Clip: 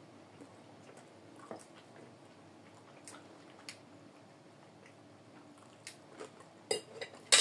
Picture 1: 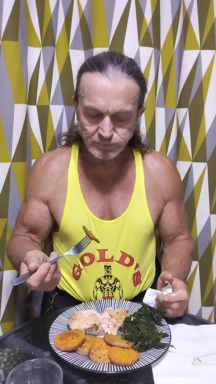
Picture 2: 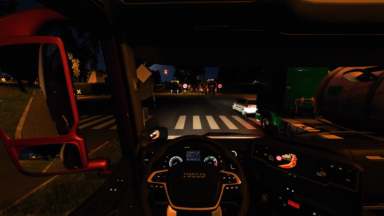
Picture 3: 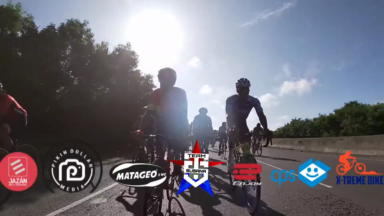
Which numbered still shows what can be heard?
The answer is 1